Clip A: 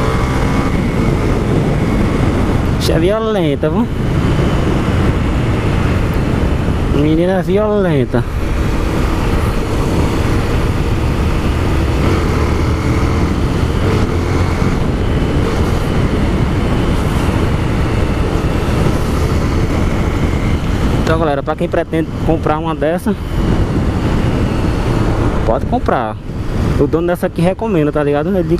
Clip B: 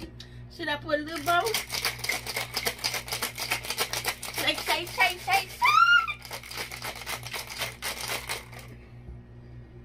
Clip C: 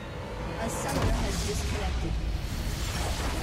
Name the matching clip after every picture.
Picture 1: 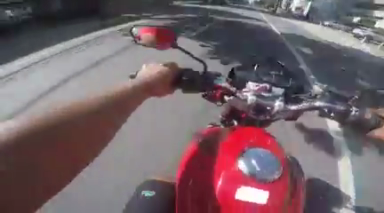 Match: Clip A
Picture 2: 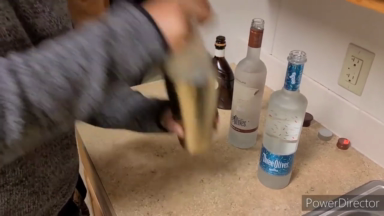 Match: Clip B